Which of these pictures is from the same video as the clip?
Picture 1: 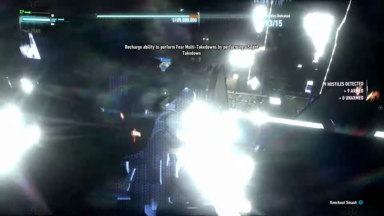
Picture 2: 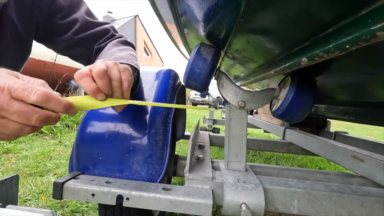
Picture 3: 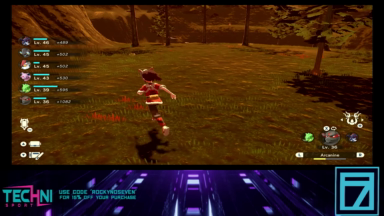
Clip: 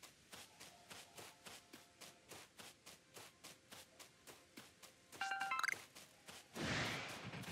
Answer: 3